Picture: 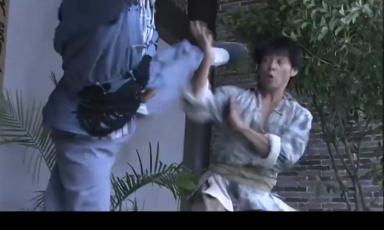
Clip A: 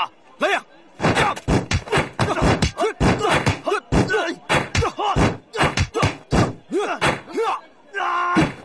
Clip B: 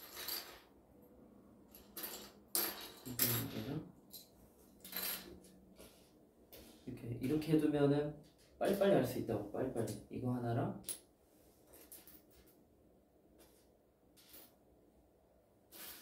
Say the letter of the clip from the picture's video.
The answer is A